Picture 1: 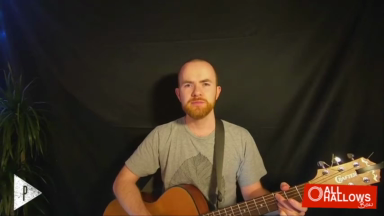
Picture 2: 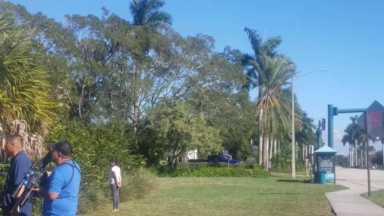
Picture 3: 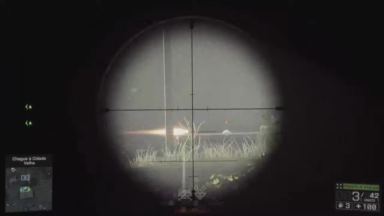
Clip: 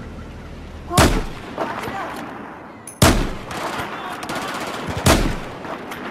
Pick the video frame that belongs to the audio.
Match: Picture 3